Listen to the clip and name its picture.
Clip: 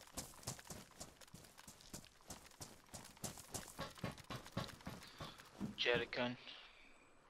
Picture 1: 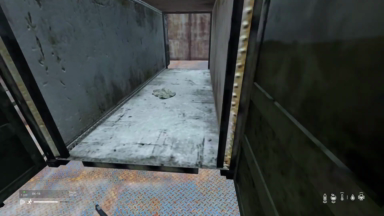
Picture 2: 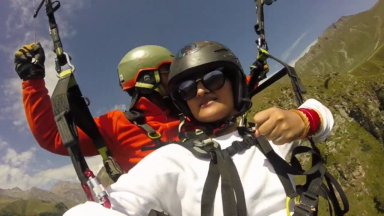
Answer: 1